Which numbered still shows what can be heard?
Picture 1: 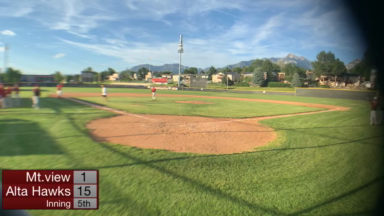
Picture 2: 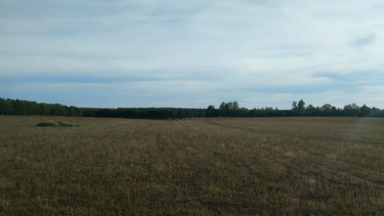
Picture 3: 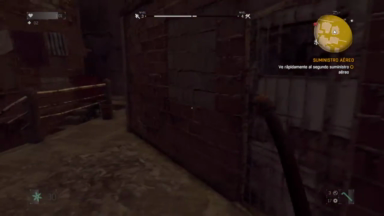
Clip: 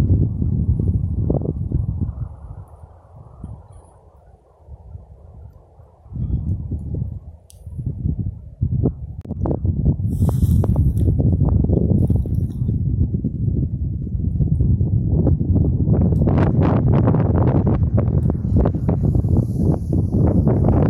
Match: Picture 2